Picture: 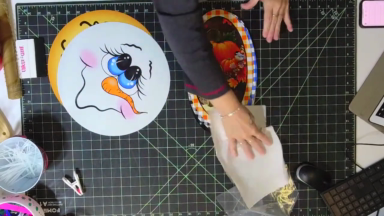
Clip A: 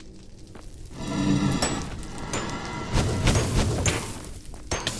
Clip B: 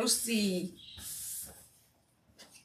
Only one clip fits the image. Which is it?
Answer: B